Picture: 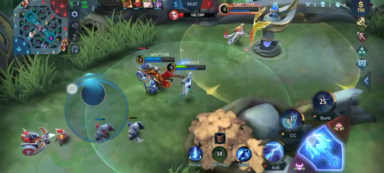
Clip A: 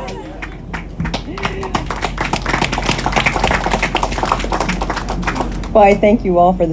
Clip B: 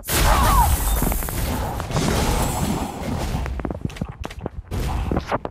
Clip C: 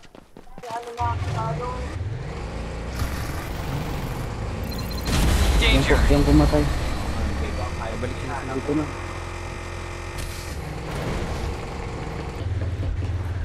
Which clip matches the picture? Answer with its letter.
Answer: B